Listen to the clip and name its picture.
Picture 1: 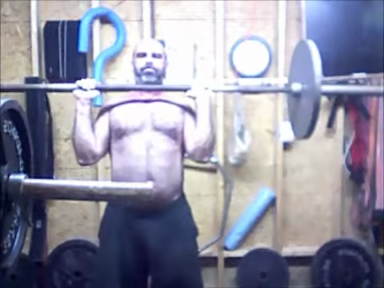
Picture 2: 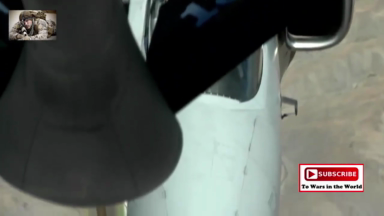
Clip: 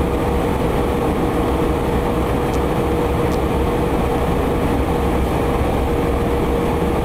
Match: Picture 2